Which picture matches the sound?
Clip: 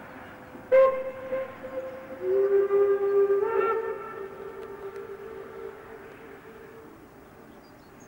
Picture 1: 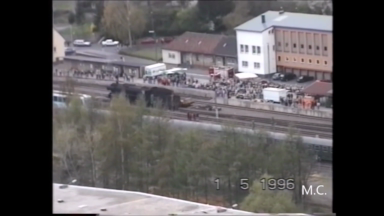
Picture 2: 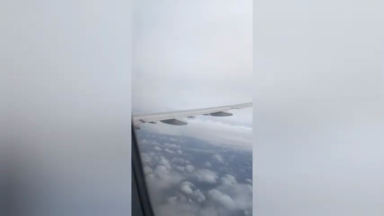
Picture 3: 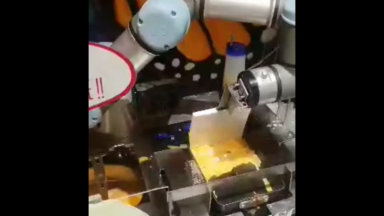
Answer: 1